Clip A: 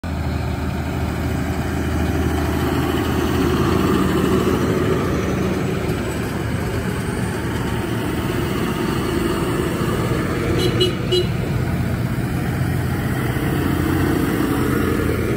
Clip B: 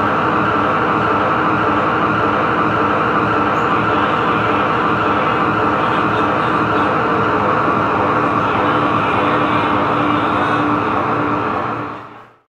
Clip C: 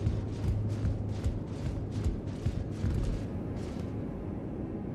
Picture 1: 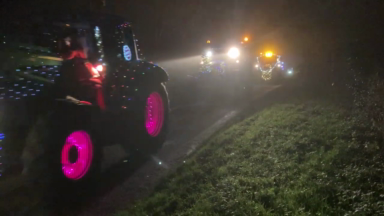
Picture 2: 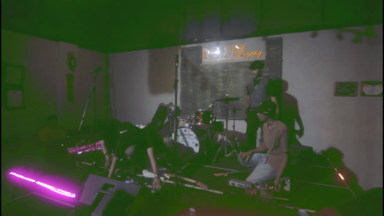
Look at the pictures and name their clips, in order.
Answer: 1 A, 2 B